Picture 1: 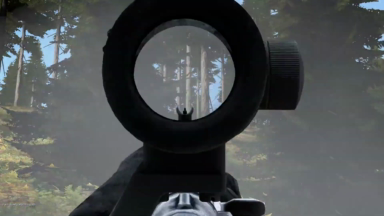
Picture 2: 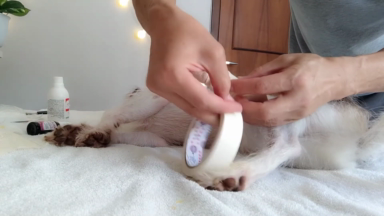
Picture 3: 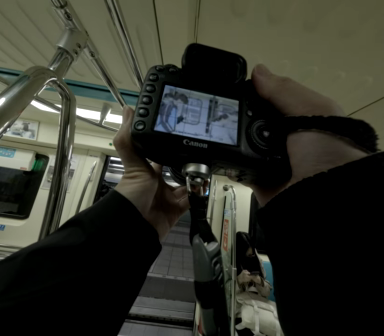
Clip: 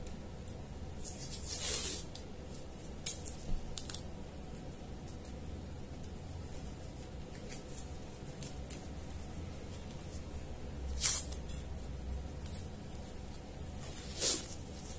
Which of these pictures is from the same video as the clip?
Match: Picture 2